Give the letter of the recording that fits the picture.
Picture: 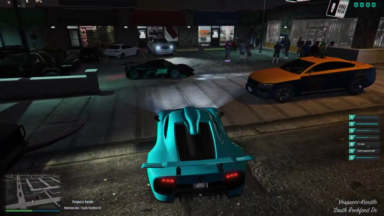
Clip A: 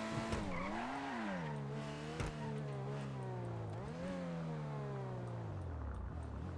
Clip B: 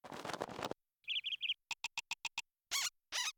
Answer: A